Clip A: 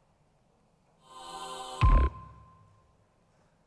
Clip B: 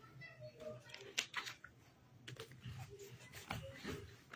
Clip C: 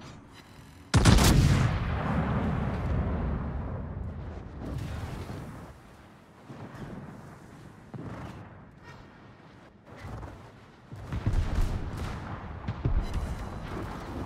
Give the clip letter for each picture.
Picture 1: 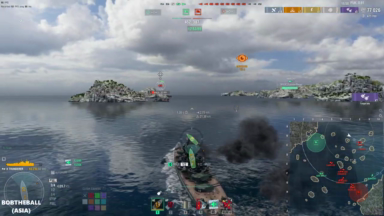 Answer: C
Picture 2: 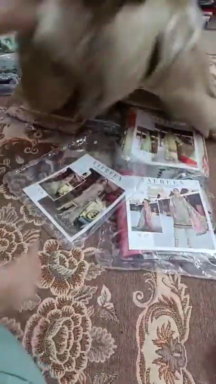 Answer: B